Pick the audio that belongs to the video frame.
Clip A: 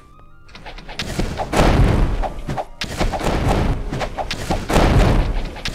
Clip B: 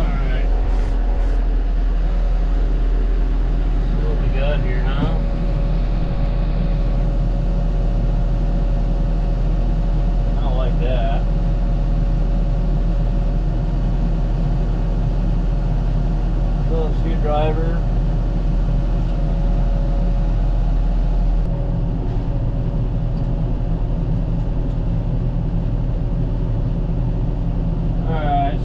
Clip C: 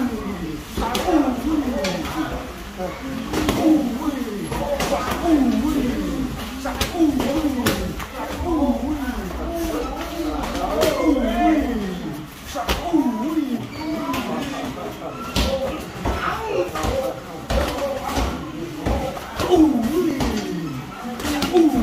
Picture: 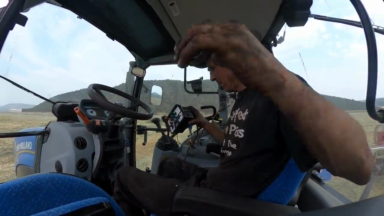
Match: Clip B